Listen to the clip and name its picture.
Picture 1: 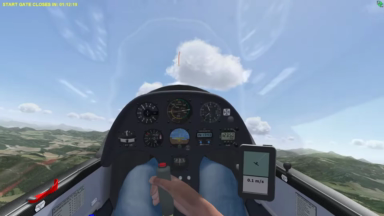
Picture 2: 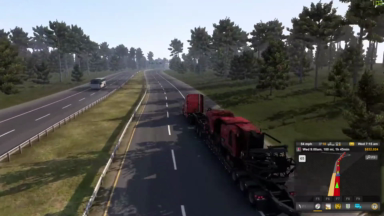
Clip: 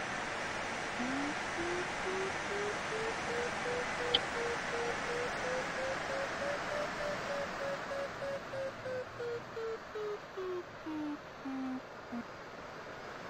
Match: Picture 1